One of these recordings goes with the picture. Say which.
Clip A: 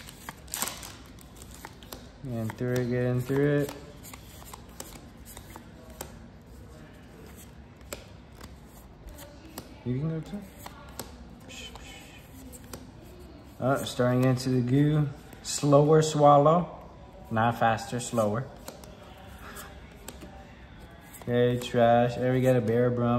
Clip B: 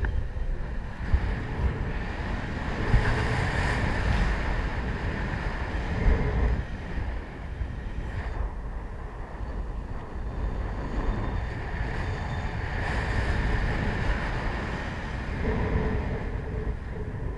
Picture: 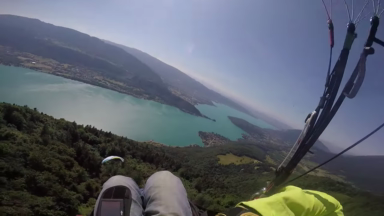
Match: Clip B